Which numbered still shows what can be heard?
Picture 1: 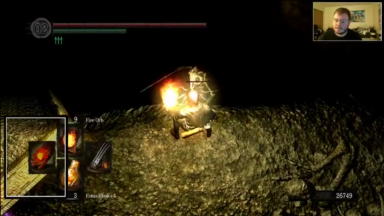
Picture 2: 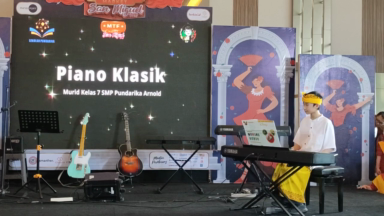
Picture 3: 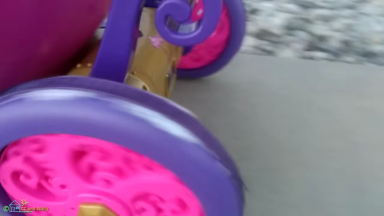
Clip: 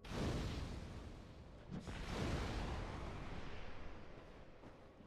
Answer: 1